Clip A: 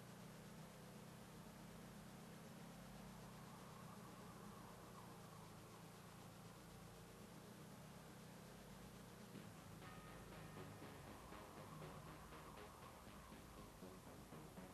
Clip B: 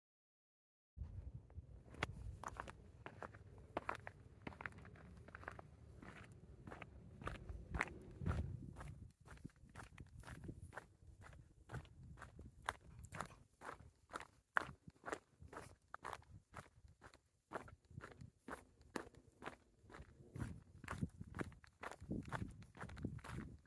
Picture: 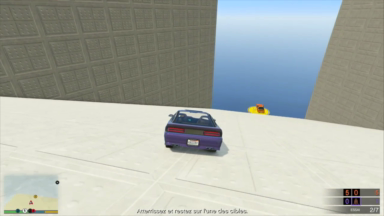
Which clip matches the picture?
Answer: A